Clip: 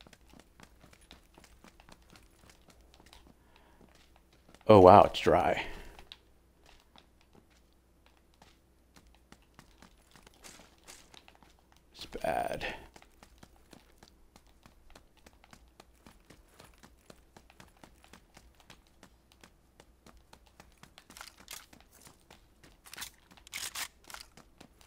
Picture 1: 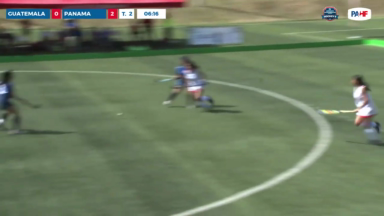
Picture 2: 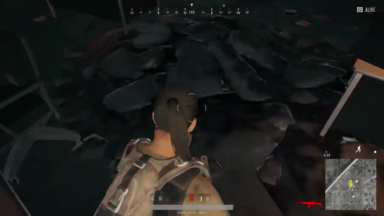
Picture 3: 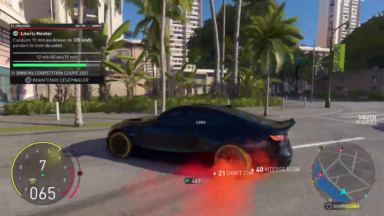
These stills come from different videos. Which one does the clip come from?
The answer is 2